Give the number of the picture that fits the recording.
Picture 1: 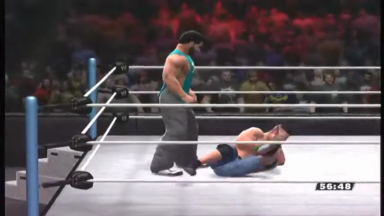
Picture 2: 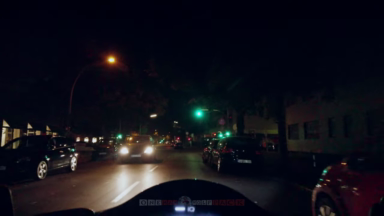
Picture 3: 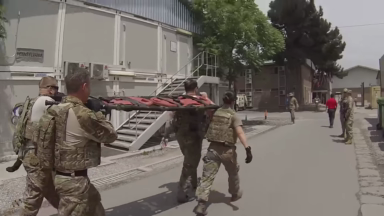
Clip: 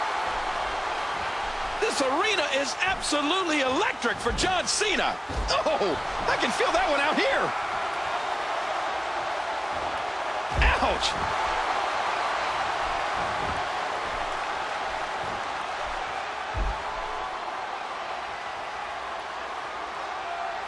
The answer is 1